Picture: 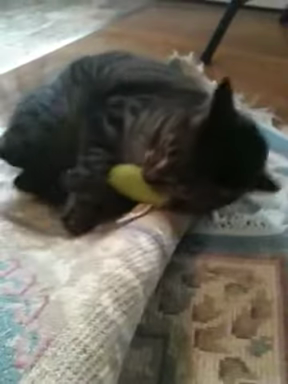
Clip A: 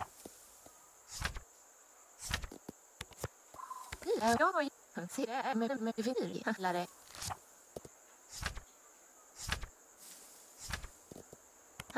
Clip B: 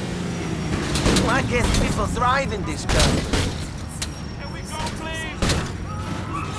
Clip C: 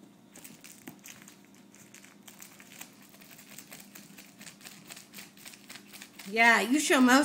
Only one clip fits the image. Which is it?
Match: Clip C